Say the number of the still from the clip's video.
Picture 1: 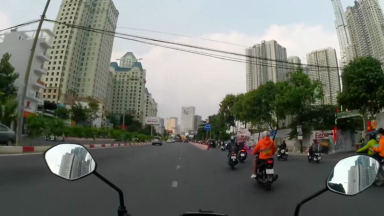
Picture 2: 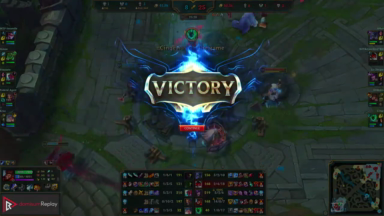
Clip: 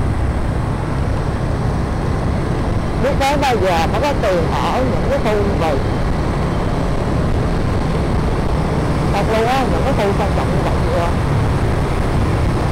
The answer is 1